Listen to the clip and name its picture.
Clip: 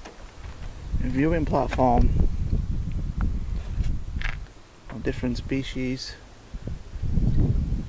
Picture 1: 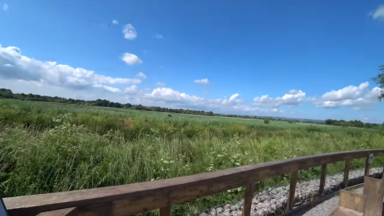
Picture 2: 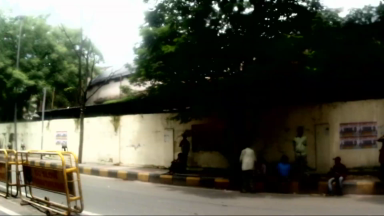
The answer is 1